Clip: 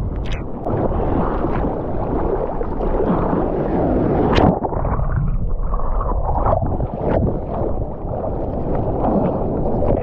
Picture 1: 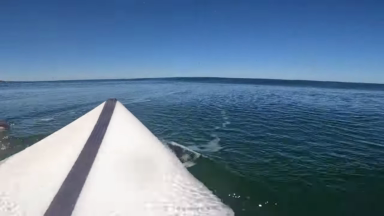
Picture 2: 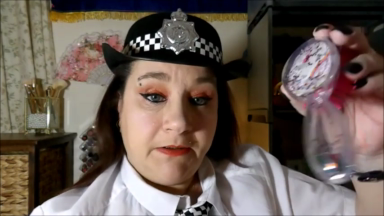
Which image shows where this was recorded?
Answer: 1